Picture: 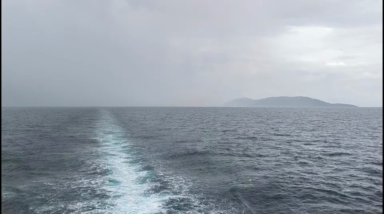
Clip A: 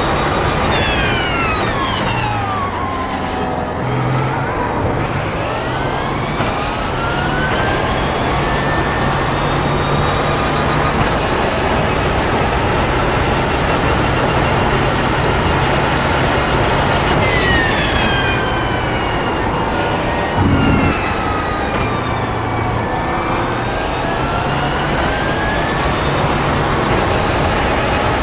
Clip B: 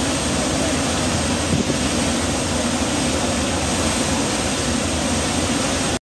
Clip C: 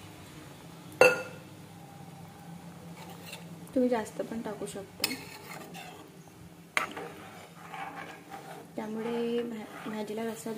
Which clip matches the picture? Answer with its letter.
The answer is B